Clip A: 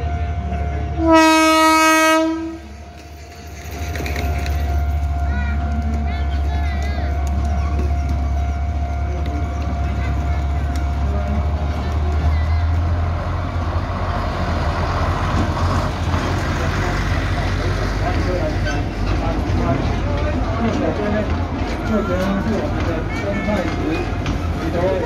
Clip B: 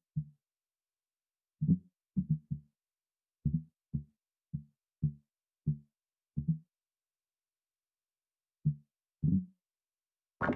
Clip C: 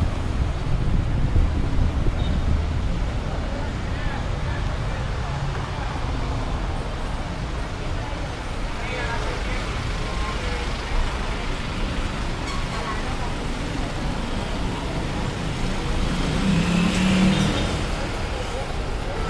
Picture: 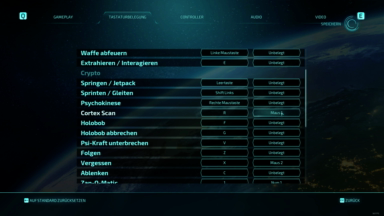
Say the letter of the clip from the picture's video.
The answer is B